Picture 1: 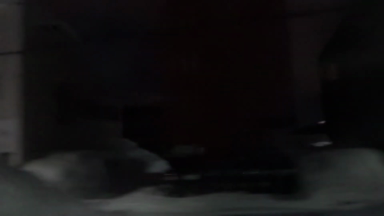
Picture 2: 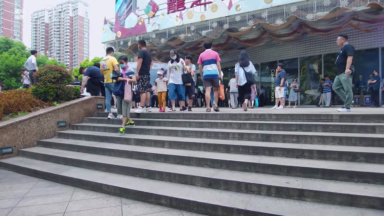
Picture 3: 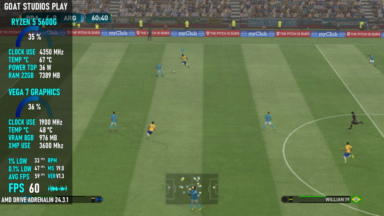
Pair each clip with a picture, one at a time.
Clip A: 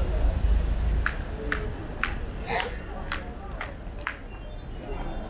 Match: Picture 2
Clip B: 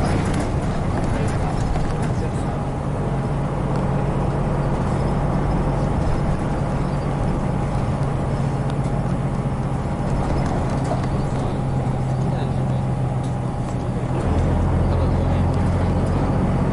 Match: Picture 1